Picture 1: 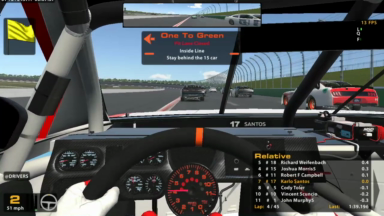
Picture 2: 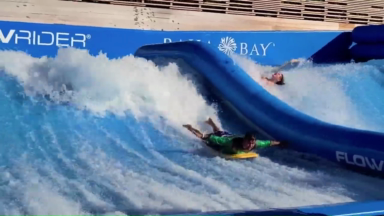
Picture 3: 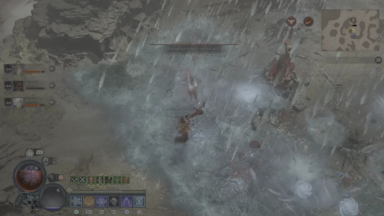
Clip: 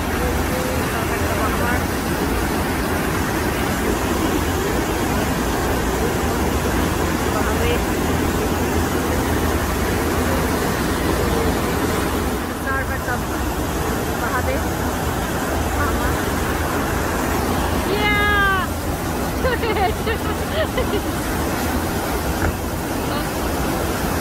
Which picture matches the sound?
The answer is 2